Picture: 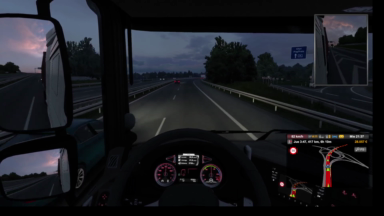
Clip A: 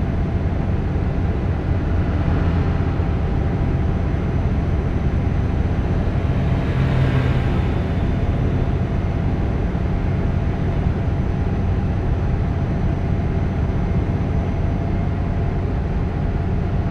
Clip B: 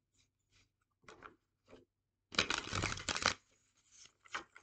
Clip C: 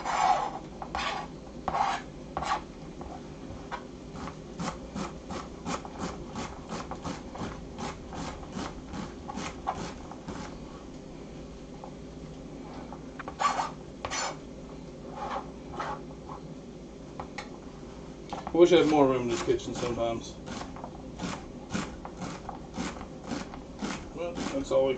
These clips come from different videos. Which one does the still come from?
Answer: A